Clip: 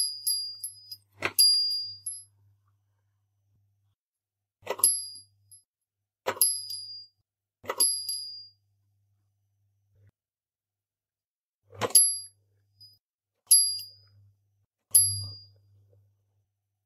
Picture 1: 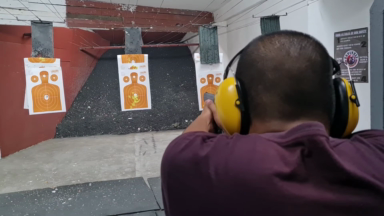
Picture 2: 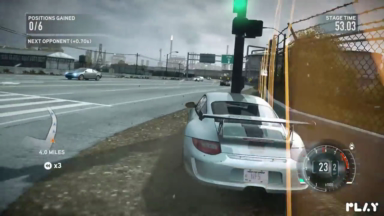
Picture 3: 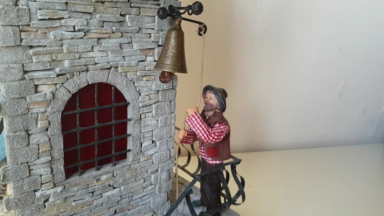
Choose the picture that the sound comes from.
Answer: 3